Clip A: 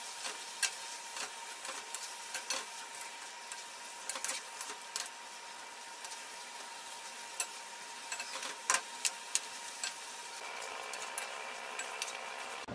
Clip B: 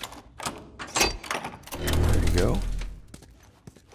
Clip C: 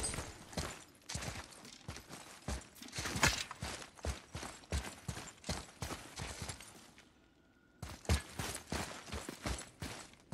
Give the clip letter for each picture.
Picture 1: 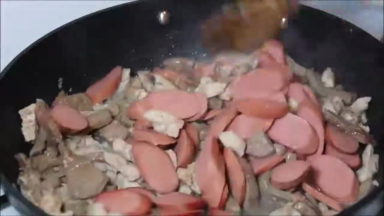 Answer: A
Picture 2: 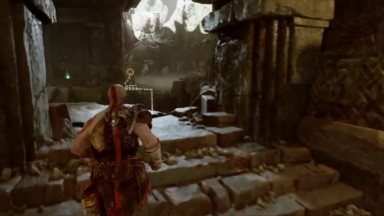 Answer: C